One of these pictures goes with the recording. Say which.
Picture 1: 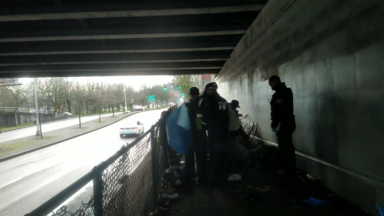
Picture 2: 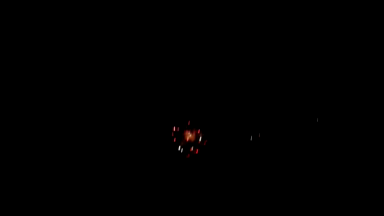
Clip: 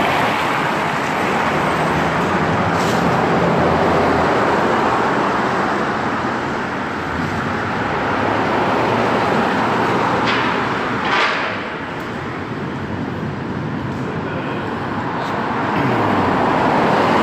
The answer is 1